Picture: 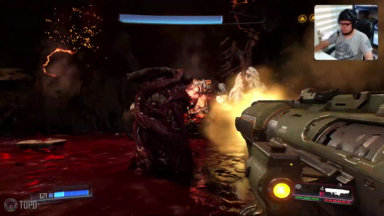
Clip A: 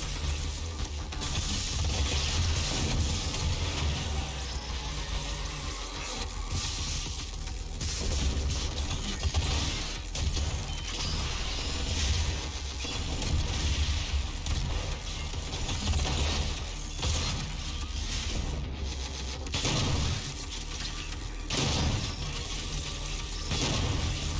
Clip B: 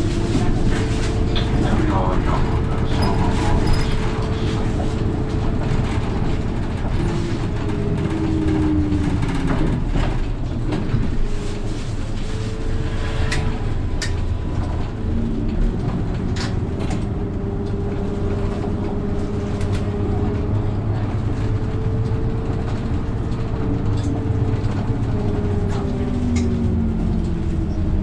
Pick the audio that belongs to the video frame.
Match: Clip A